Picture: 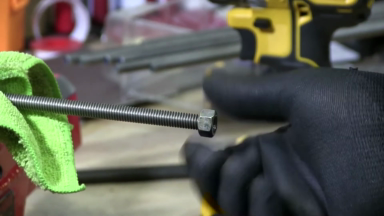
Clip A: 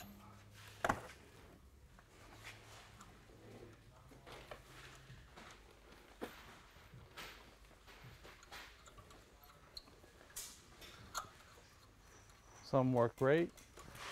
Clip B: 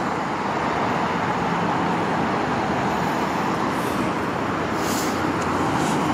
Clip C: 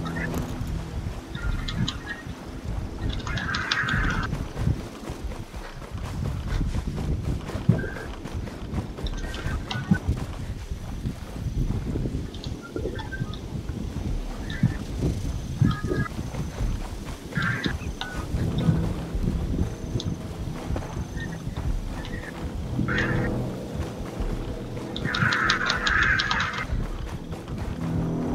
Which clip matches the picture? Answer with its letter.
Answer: A